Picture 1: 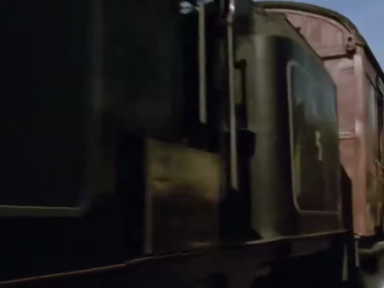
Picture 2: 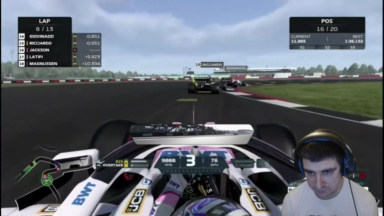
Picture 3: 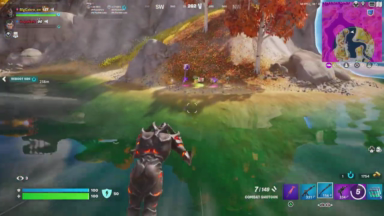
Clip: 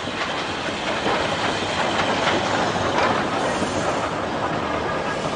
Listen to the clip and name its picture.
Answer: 1